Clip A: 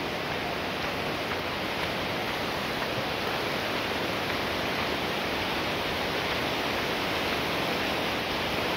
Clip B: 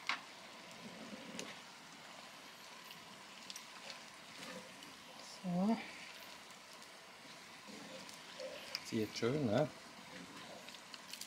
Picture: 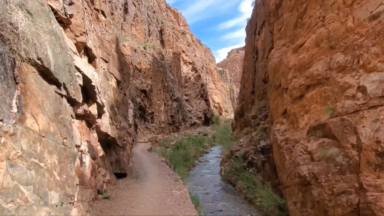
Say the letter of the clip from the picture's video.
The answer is A